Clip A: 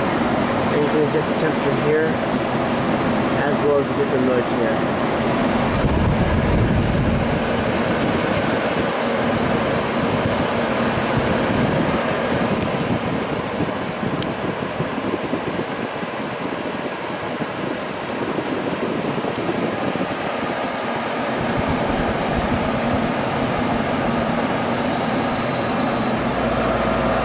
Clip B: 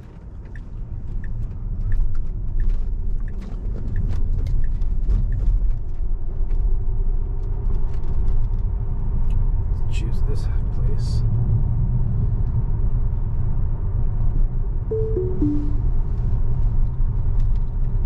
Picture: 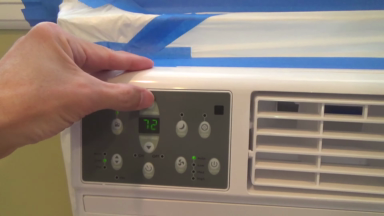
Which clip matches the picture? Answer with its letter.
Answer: A